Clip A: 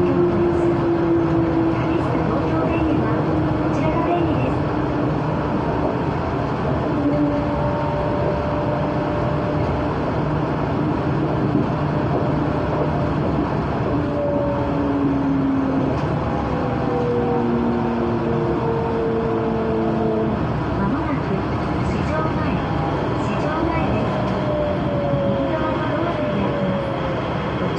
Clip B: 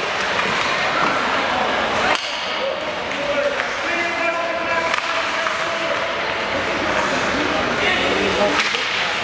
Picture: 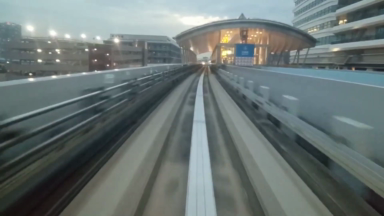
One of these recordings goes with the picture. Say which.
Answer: A